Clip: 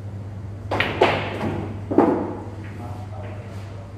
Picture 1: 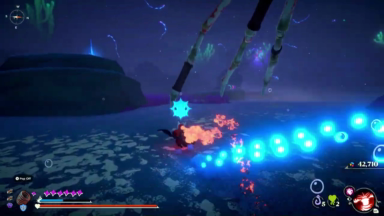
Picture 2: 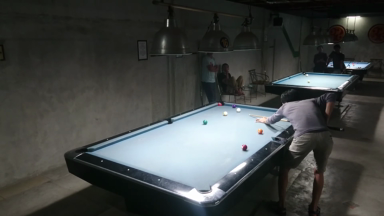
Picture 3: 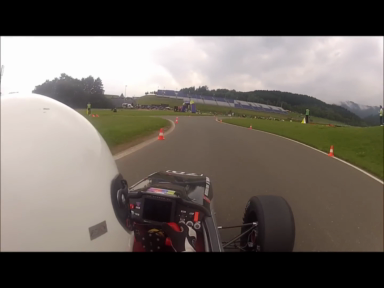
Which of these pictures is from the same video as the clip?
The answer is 2